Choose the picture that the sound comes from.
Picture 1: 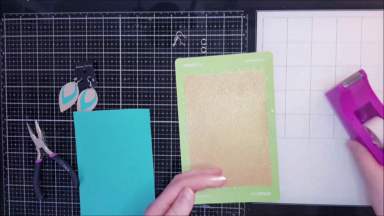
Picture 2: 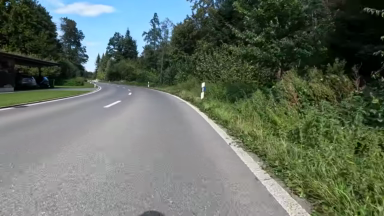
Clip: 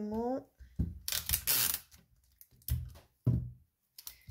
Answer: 1